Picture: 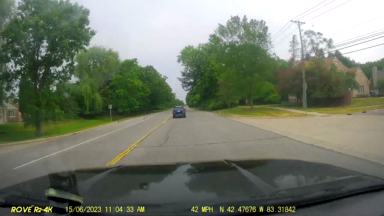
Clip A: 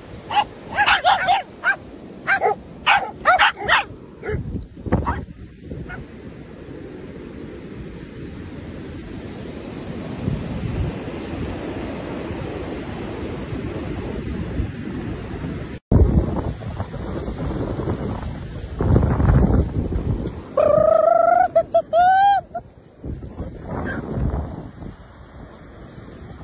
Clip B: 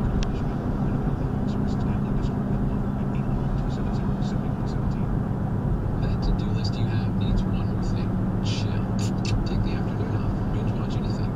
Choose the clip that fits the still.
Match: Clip B